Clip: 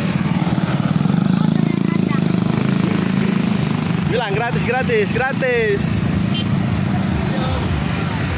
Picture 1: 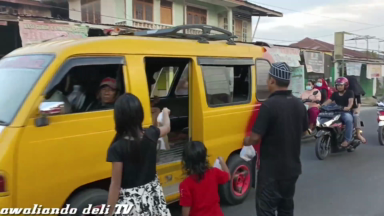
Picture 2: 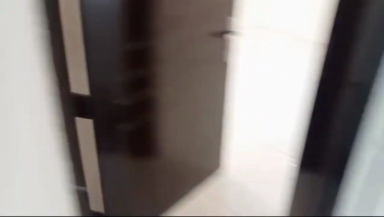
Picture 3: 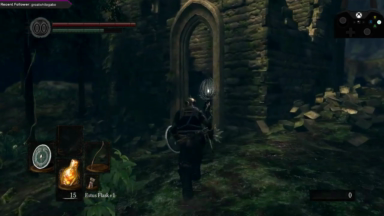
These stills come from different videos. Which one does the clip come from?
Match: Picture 1